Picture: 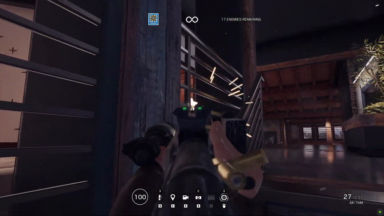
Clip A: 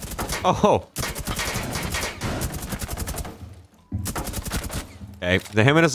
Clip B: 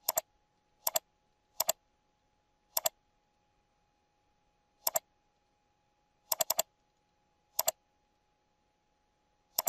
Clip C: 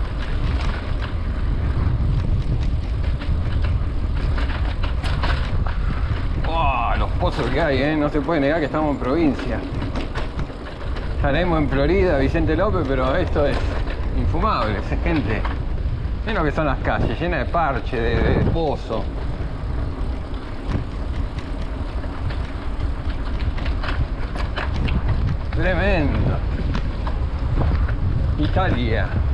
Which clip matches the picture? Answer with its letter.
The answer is A